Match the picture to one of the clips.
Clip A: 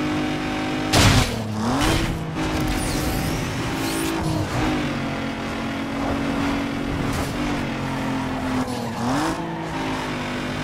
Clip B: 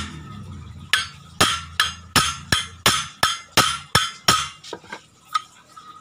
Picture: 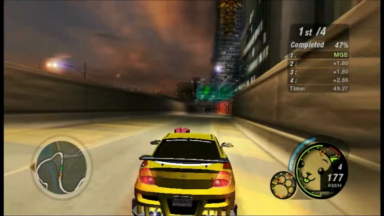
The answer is A